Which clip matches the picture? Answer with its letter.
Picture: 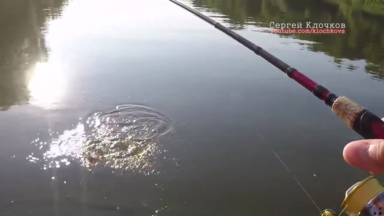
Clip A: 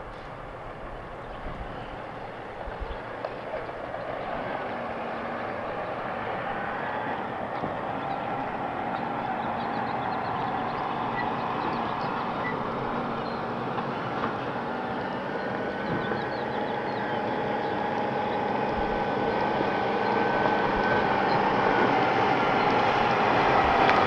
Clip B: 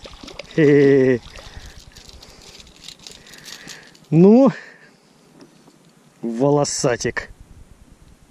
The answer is B